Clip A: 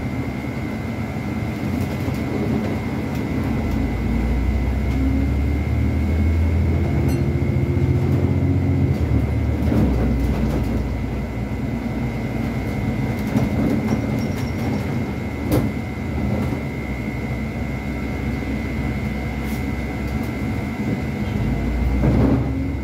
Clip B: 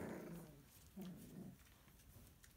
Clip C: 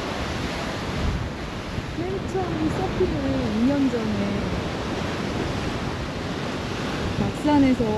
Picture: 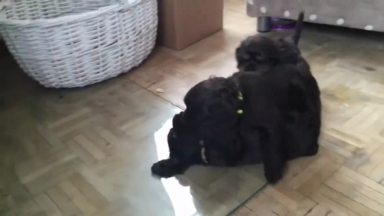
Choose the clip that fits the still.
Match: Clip B